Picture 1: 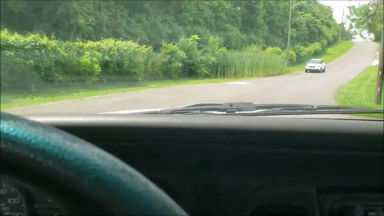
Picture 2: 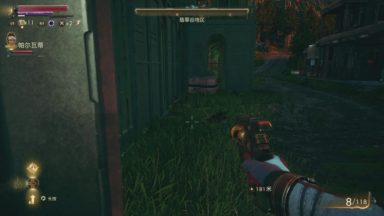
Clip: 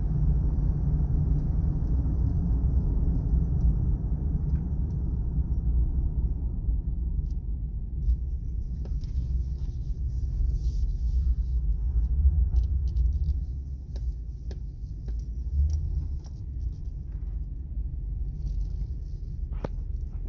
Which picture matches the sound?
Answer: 1